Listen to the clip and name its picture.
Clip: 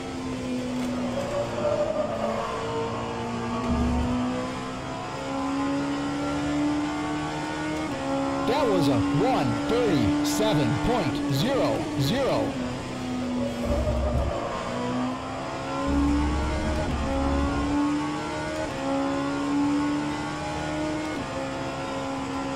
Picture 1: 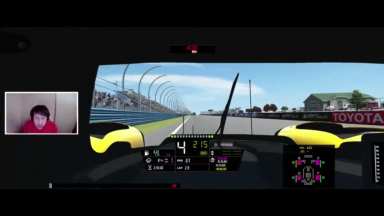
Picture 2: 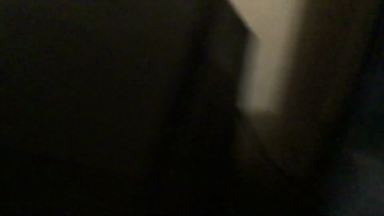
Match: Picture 1